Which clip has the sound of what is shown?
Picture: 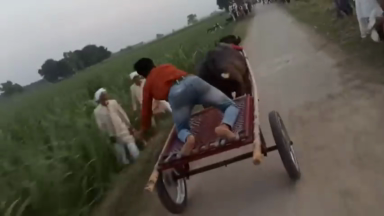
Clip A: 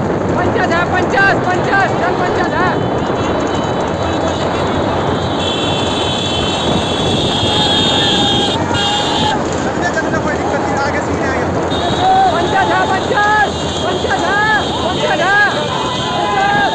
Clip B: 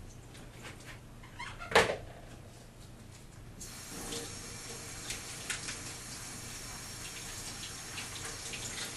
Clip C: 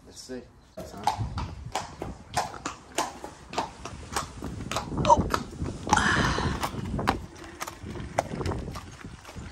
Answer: A